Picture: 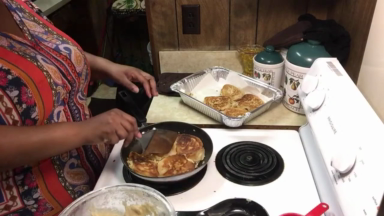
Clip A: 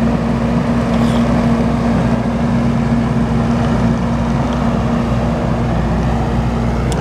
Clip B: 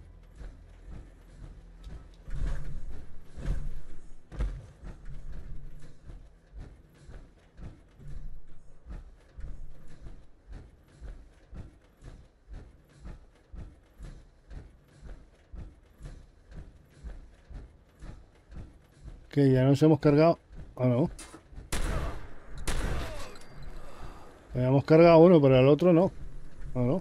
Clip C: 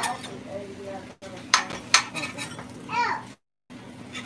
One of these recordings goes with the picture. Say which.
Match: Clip C